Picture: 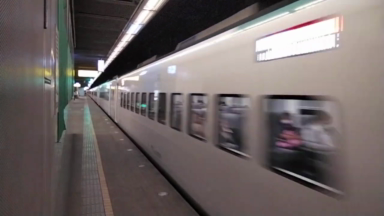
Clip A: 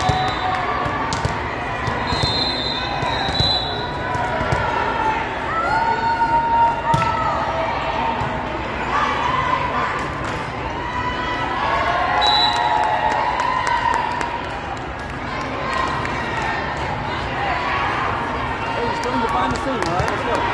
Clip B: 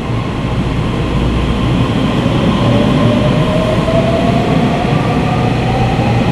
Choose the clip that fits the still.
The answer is B